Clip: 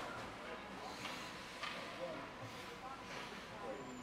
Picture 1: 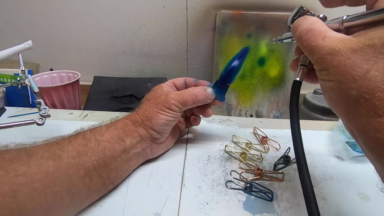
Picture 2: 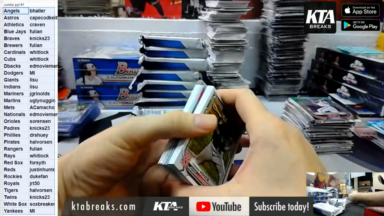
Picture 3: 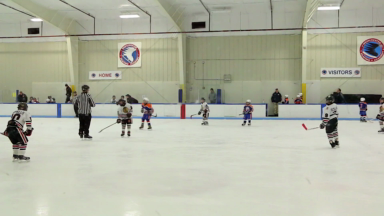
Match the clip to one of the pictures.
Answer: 3